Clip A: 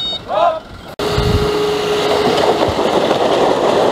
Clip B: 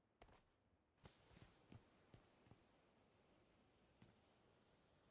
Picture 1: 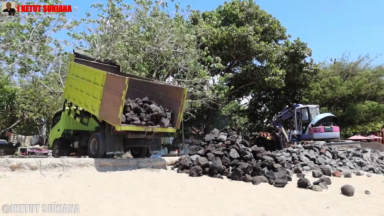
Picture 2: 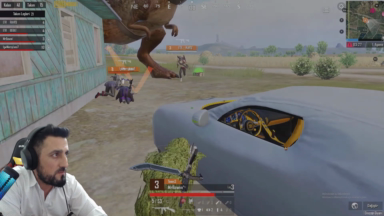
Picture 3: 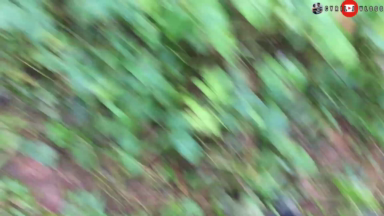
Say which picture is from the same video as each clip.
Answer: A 1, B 2